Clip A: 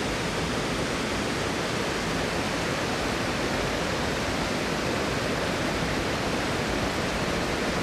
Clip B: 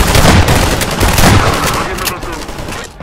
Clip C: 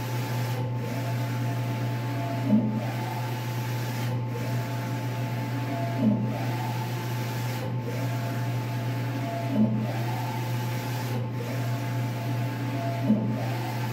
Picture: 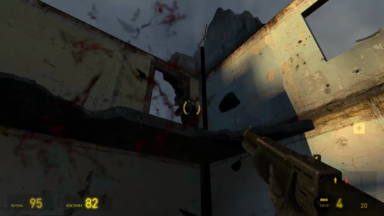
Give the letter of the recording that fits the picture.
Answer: B